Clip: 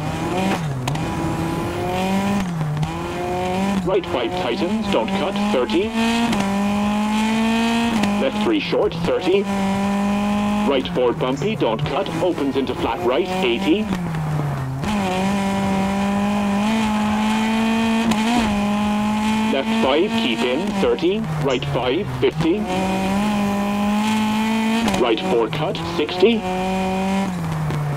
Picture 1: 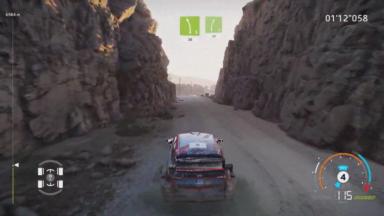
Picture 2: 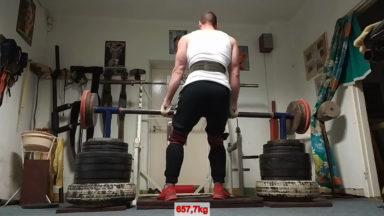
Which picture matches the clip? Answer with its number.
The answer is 1